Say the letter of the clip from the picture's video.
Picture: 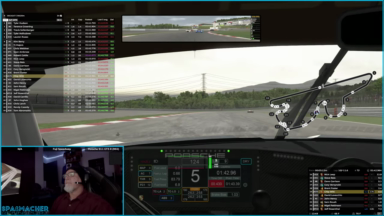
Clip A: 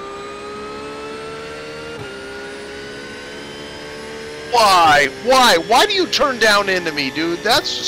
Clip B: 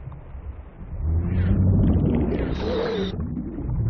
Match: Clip A